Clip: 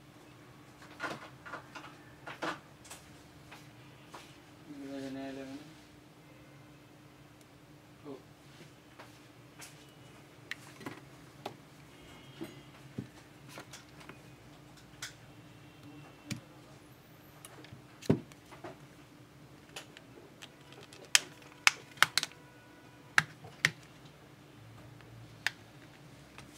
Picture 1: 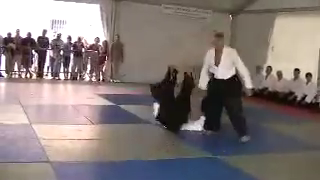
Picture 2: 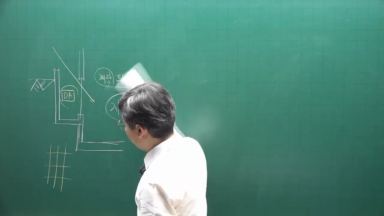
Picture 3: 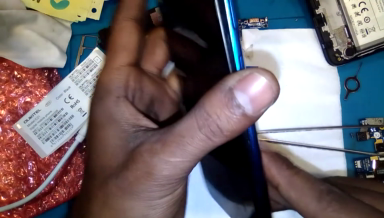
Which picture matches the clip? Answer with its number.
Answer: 3